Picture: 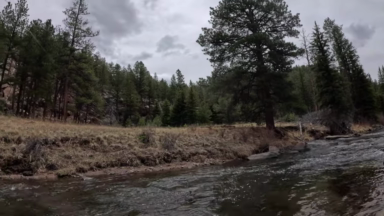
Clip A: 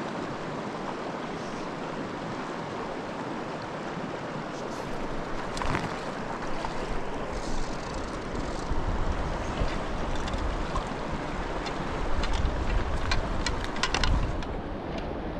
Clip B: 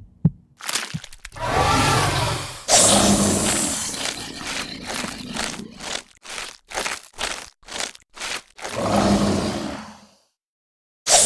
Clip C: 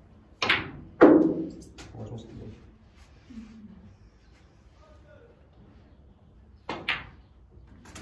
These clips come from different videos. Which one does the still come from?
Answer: A